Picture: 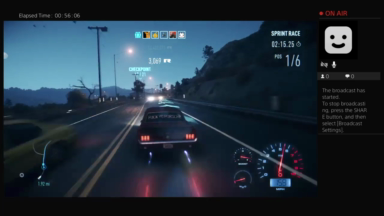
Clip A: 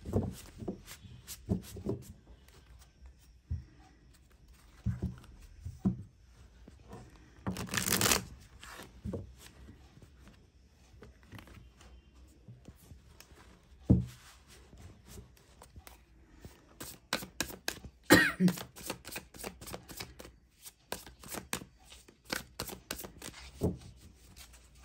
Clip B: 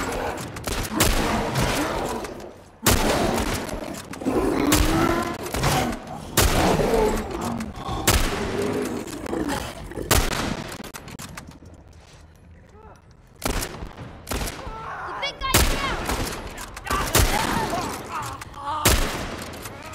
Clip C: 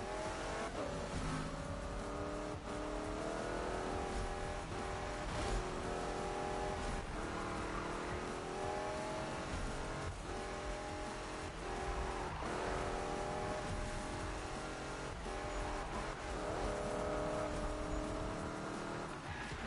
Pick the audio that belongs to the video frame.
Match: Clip C